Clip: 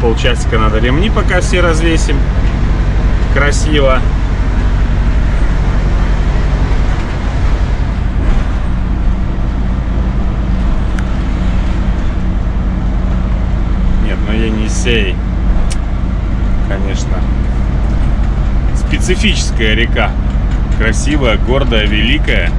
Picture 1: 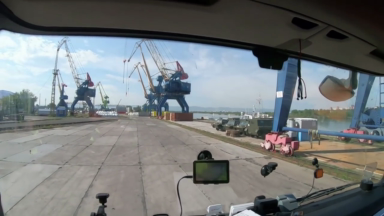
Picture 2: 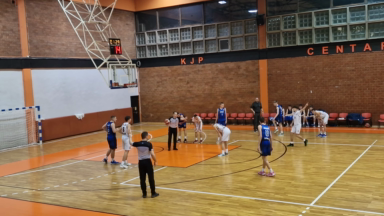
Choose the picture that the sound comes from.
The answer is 1